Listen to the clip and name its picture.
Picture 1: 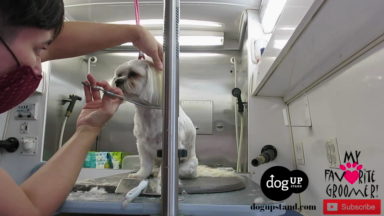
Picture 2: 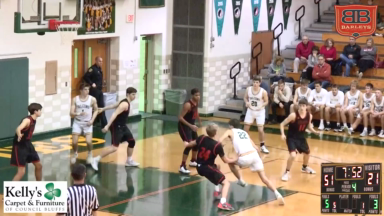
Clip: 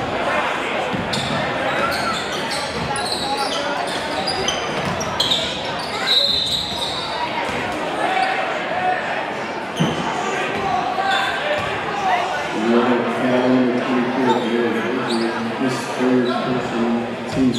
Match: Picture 2